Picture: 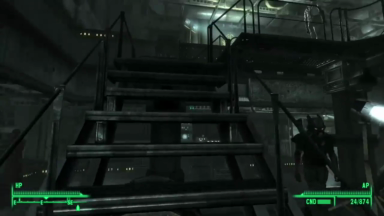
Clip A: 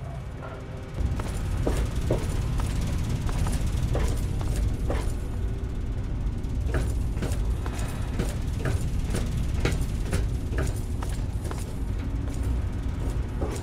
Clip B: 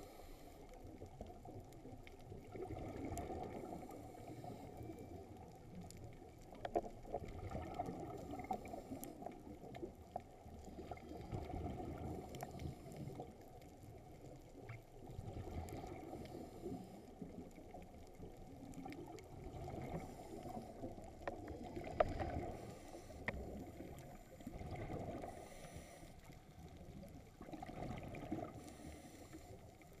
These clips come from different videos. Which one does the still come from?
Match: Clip A